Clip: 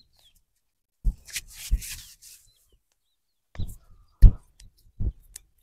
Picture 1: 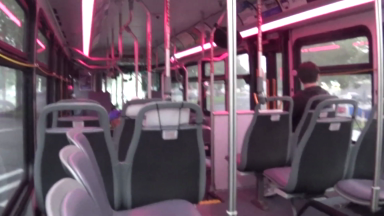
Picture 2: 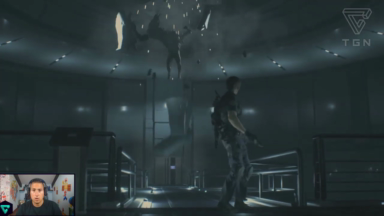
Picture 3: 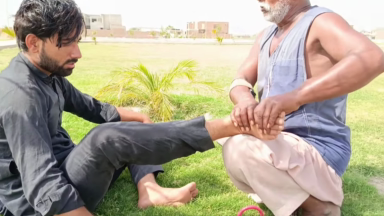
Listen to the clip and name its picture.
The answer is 3